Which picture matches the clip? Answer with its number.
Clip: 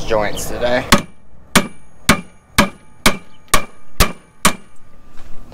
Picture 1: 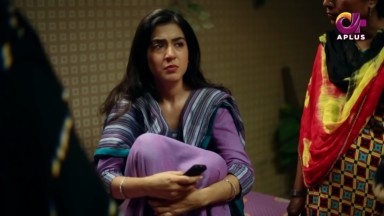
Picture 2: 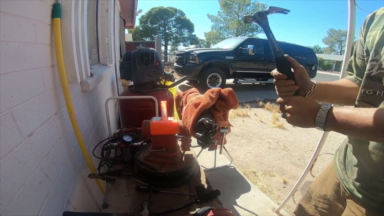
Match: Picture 2